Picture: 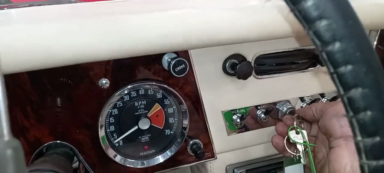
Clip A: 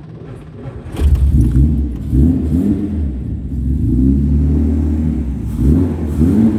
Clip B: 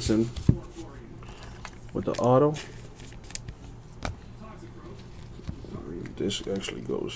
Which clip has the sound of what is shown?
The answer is A